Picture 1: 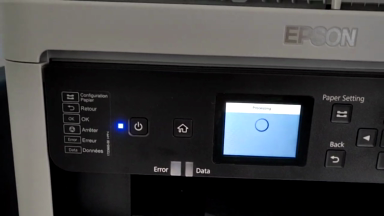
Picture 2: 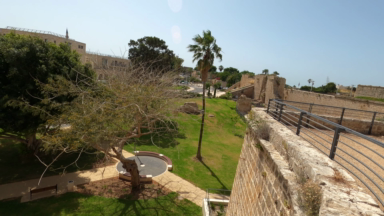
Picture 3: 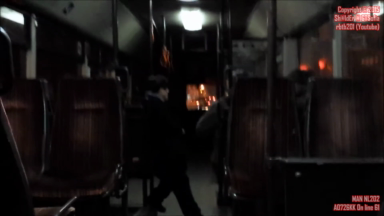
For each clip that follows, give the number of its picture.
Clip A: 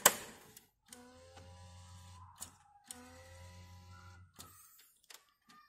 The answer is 1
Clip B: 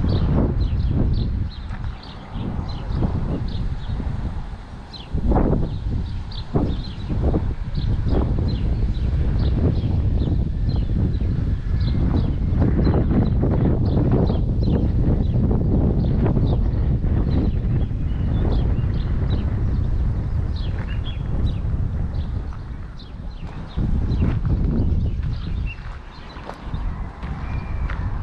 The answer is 2